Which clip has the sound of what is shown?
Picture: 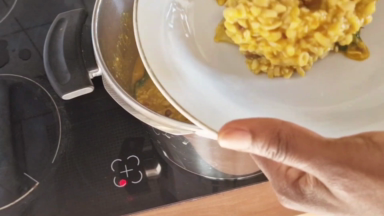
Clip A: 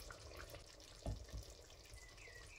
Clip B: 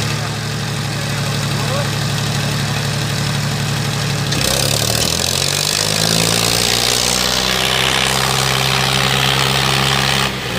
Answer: A